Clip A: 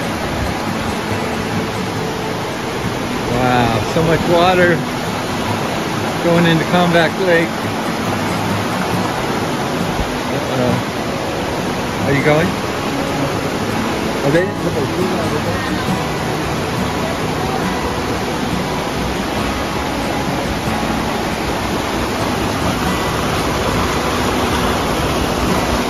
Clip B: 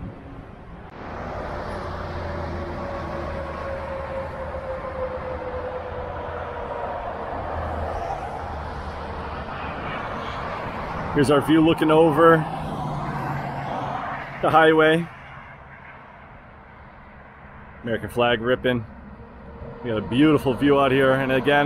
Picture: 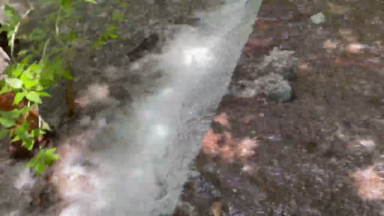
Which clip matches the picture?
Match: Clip A